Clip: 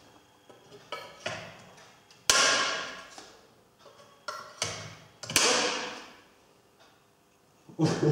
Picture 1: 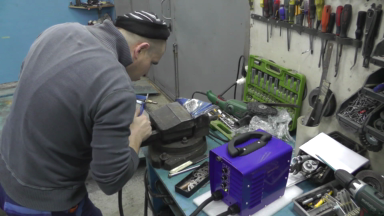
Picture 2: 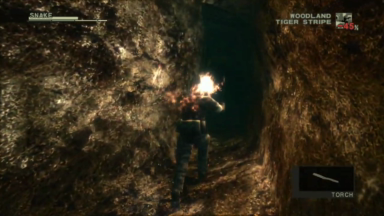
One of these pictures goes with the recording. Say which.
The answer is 1